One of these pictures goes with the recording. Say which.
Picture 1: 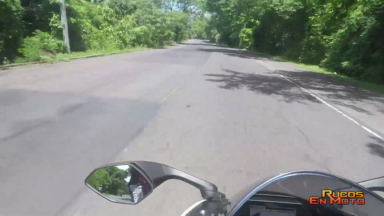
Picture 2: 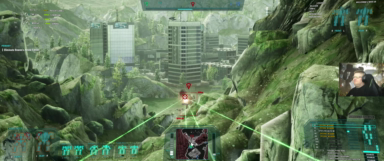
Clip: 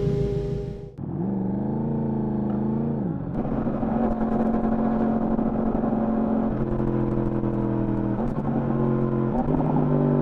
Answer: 1